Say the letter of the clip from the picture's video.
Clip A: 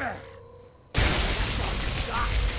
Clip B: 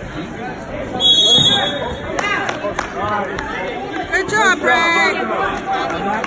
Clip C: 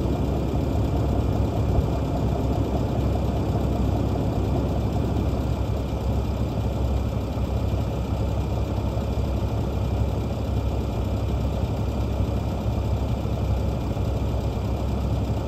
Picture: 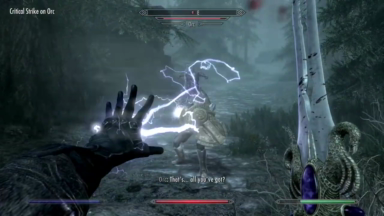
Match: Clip A